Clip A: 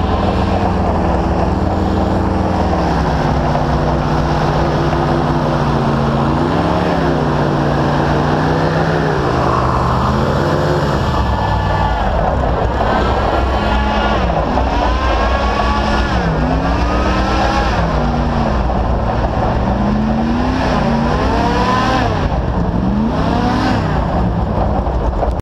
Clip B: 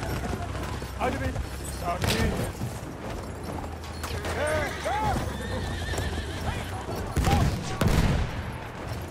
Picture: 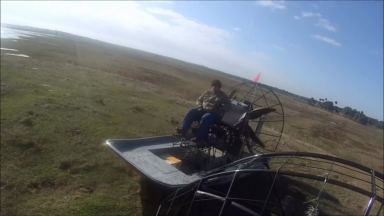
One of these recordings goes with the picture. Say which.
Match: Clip A